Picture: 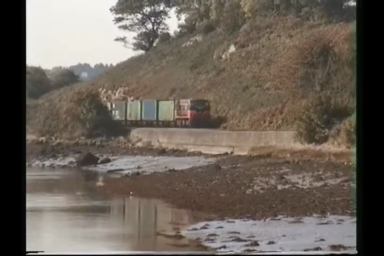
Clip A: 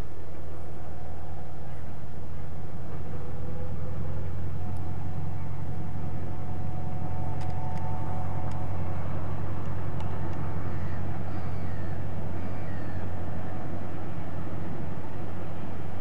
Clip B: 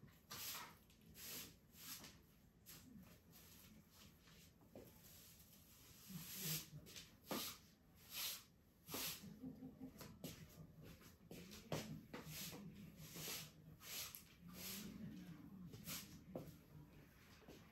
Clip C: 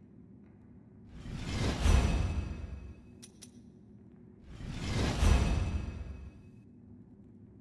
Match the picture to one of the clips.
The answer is A